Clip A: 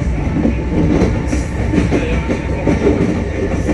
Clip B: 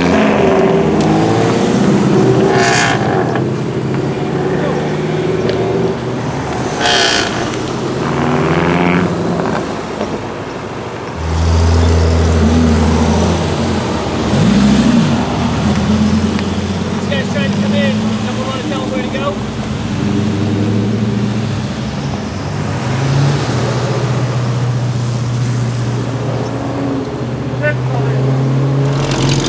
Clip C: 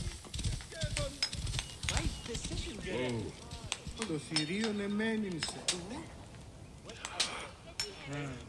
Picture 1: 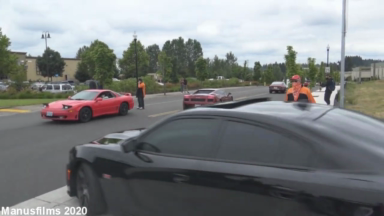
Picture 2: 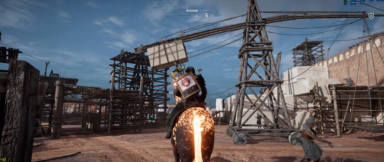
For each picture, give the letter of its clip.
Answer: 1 B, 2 C